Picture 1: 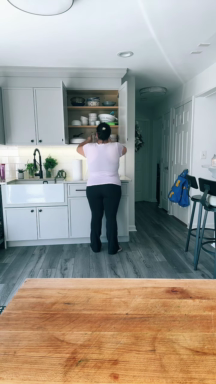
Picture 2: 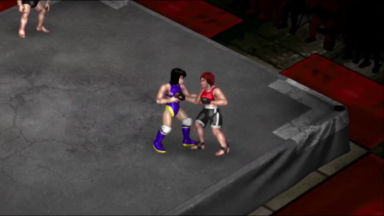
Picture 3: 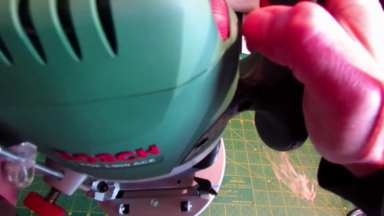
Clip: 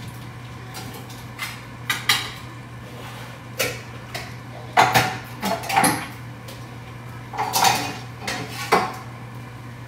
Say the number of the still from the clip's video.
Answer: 1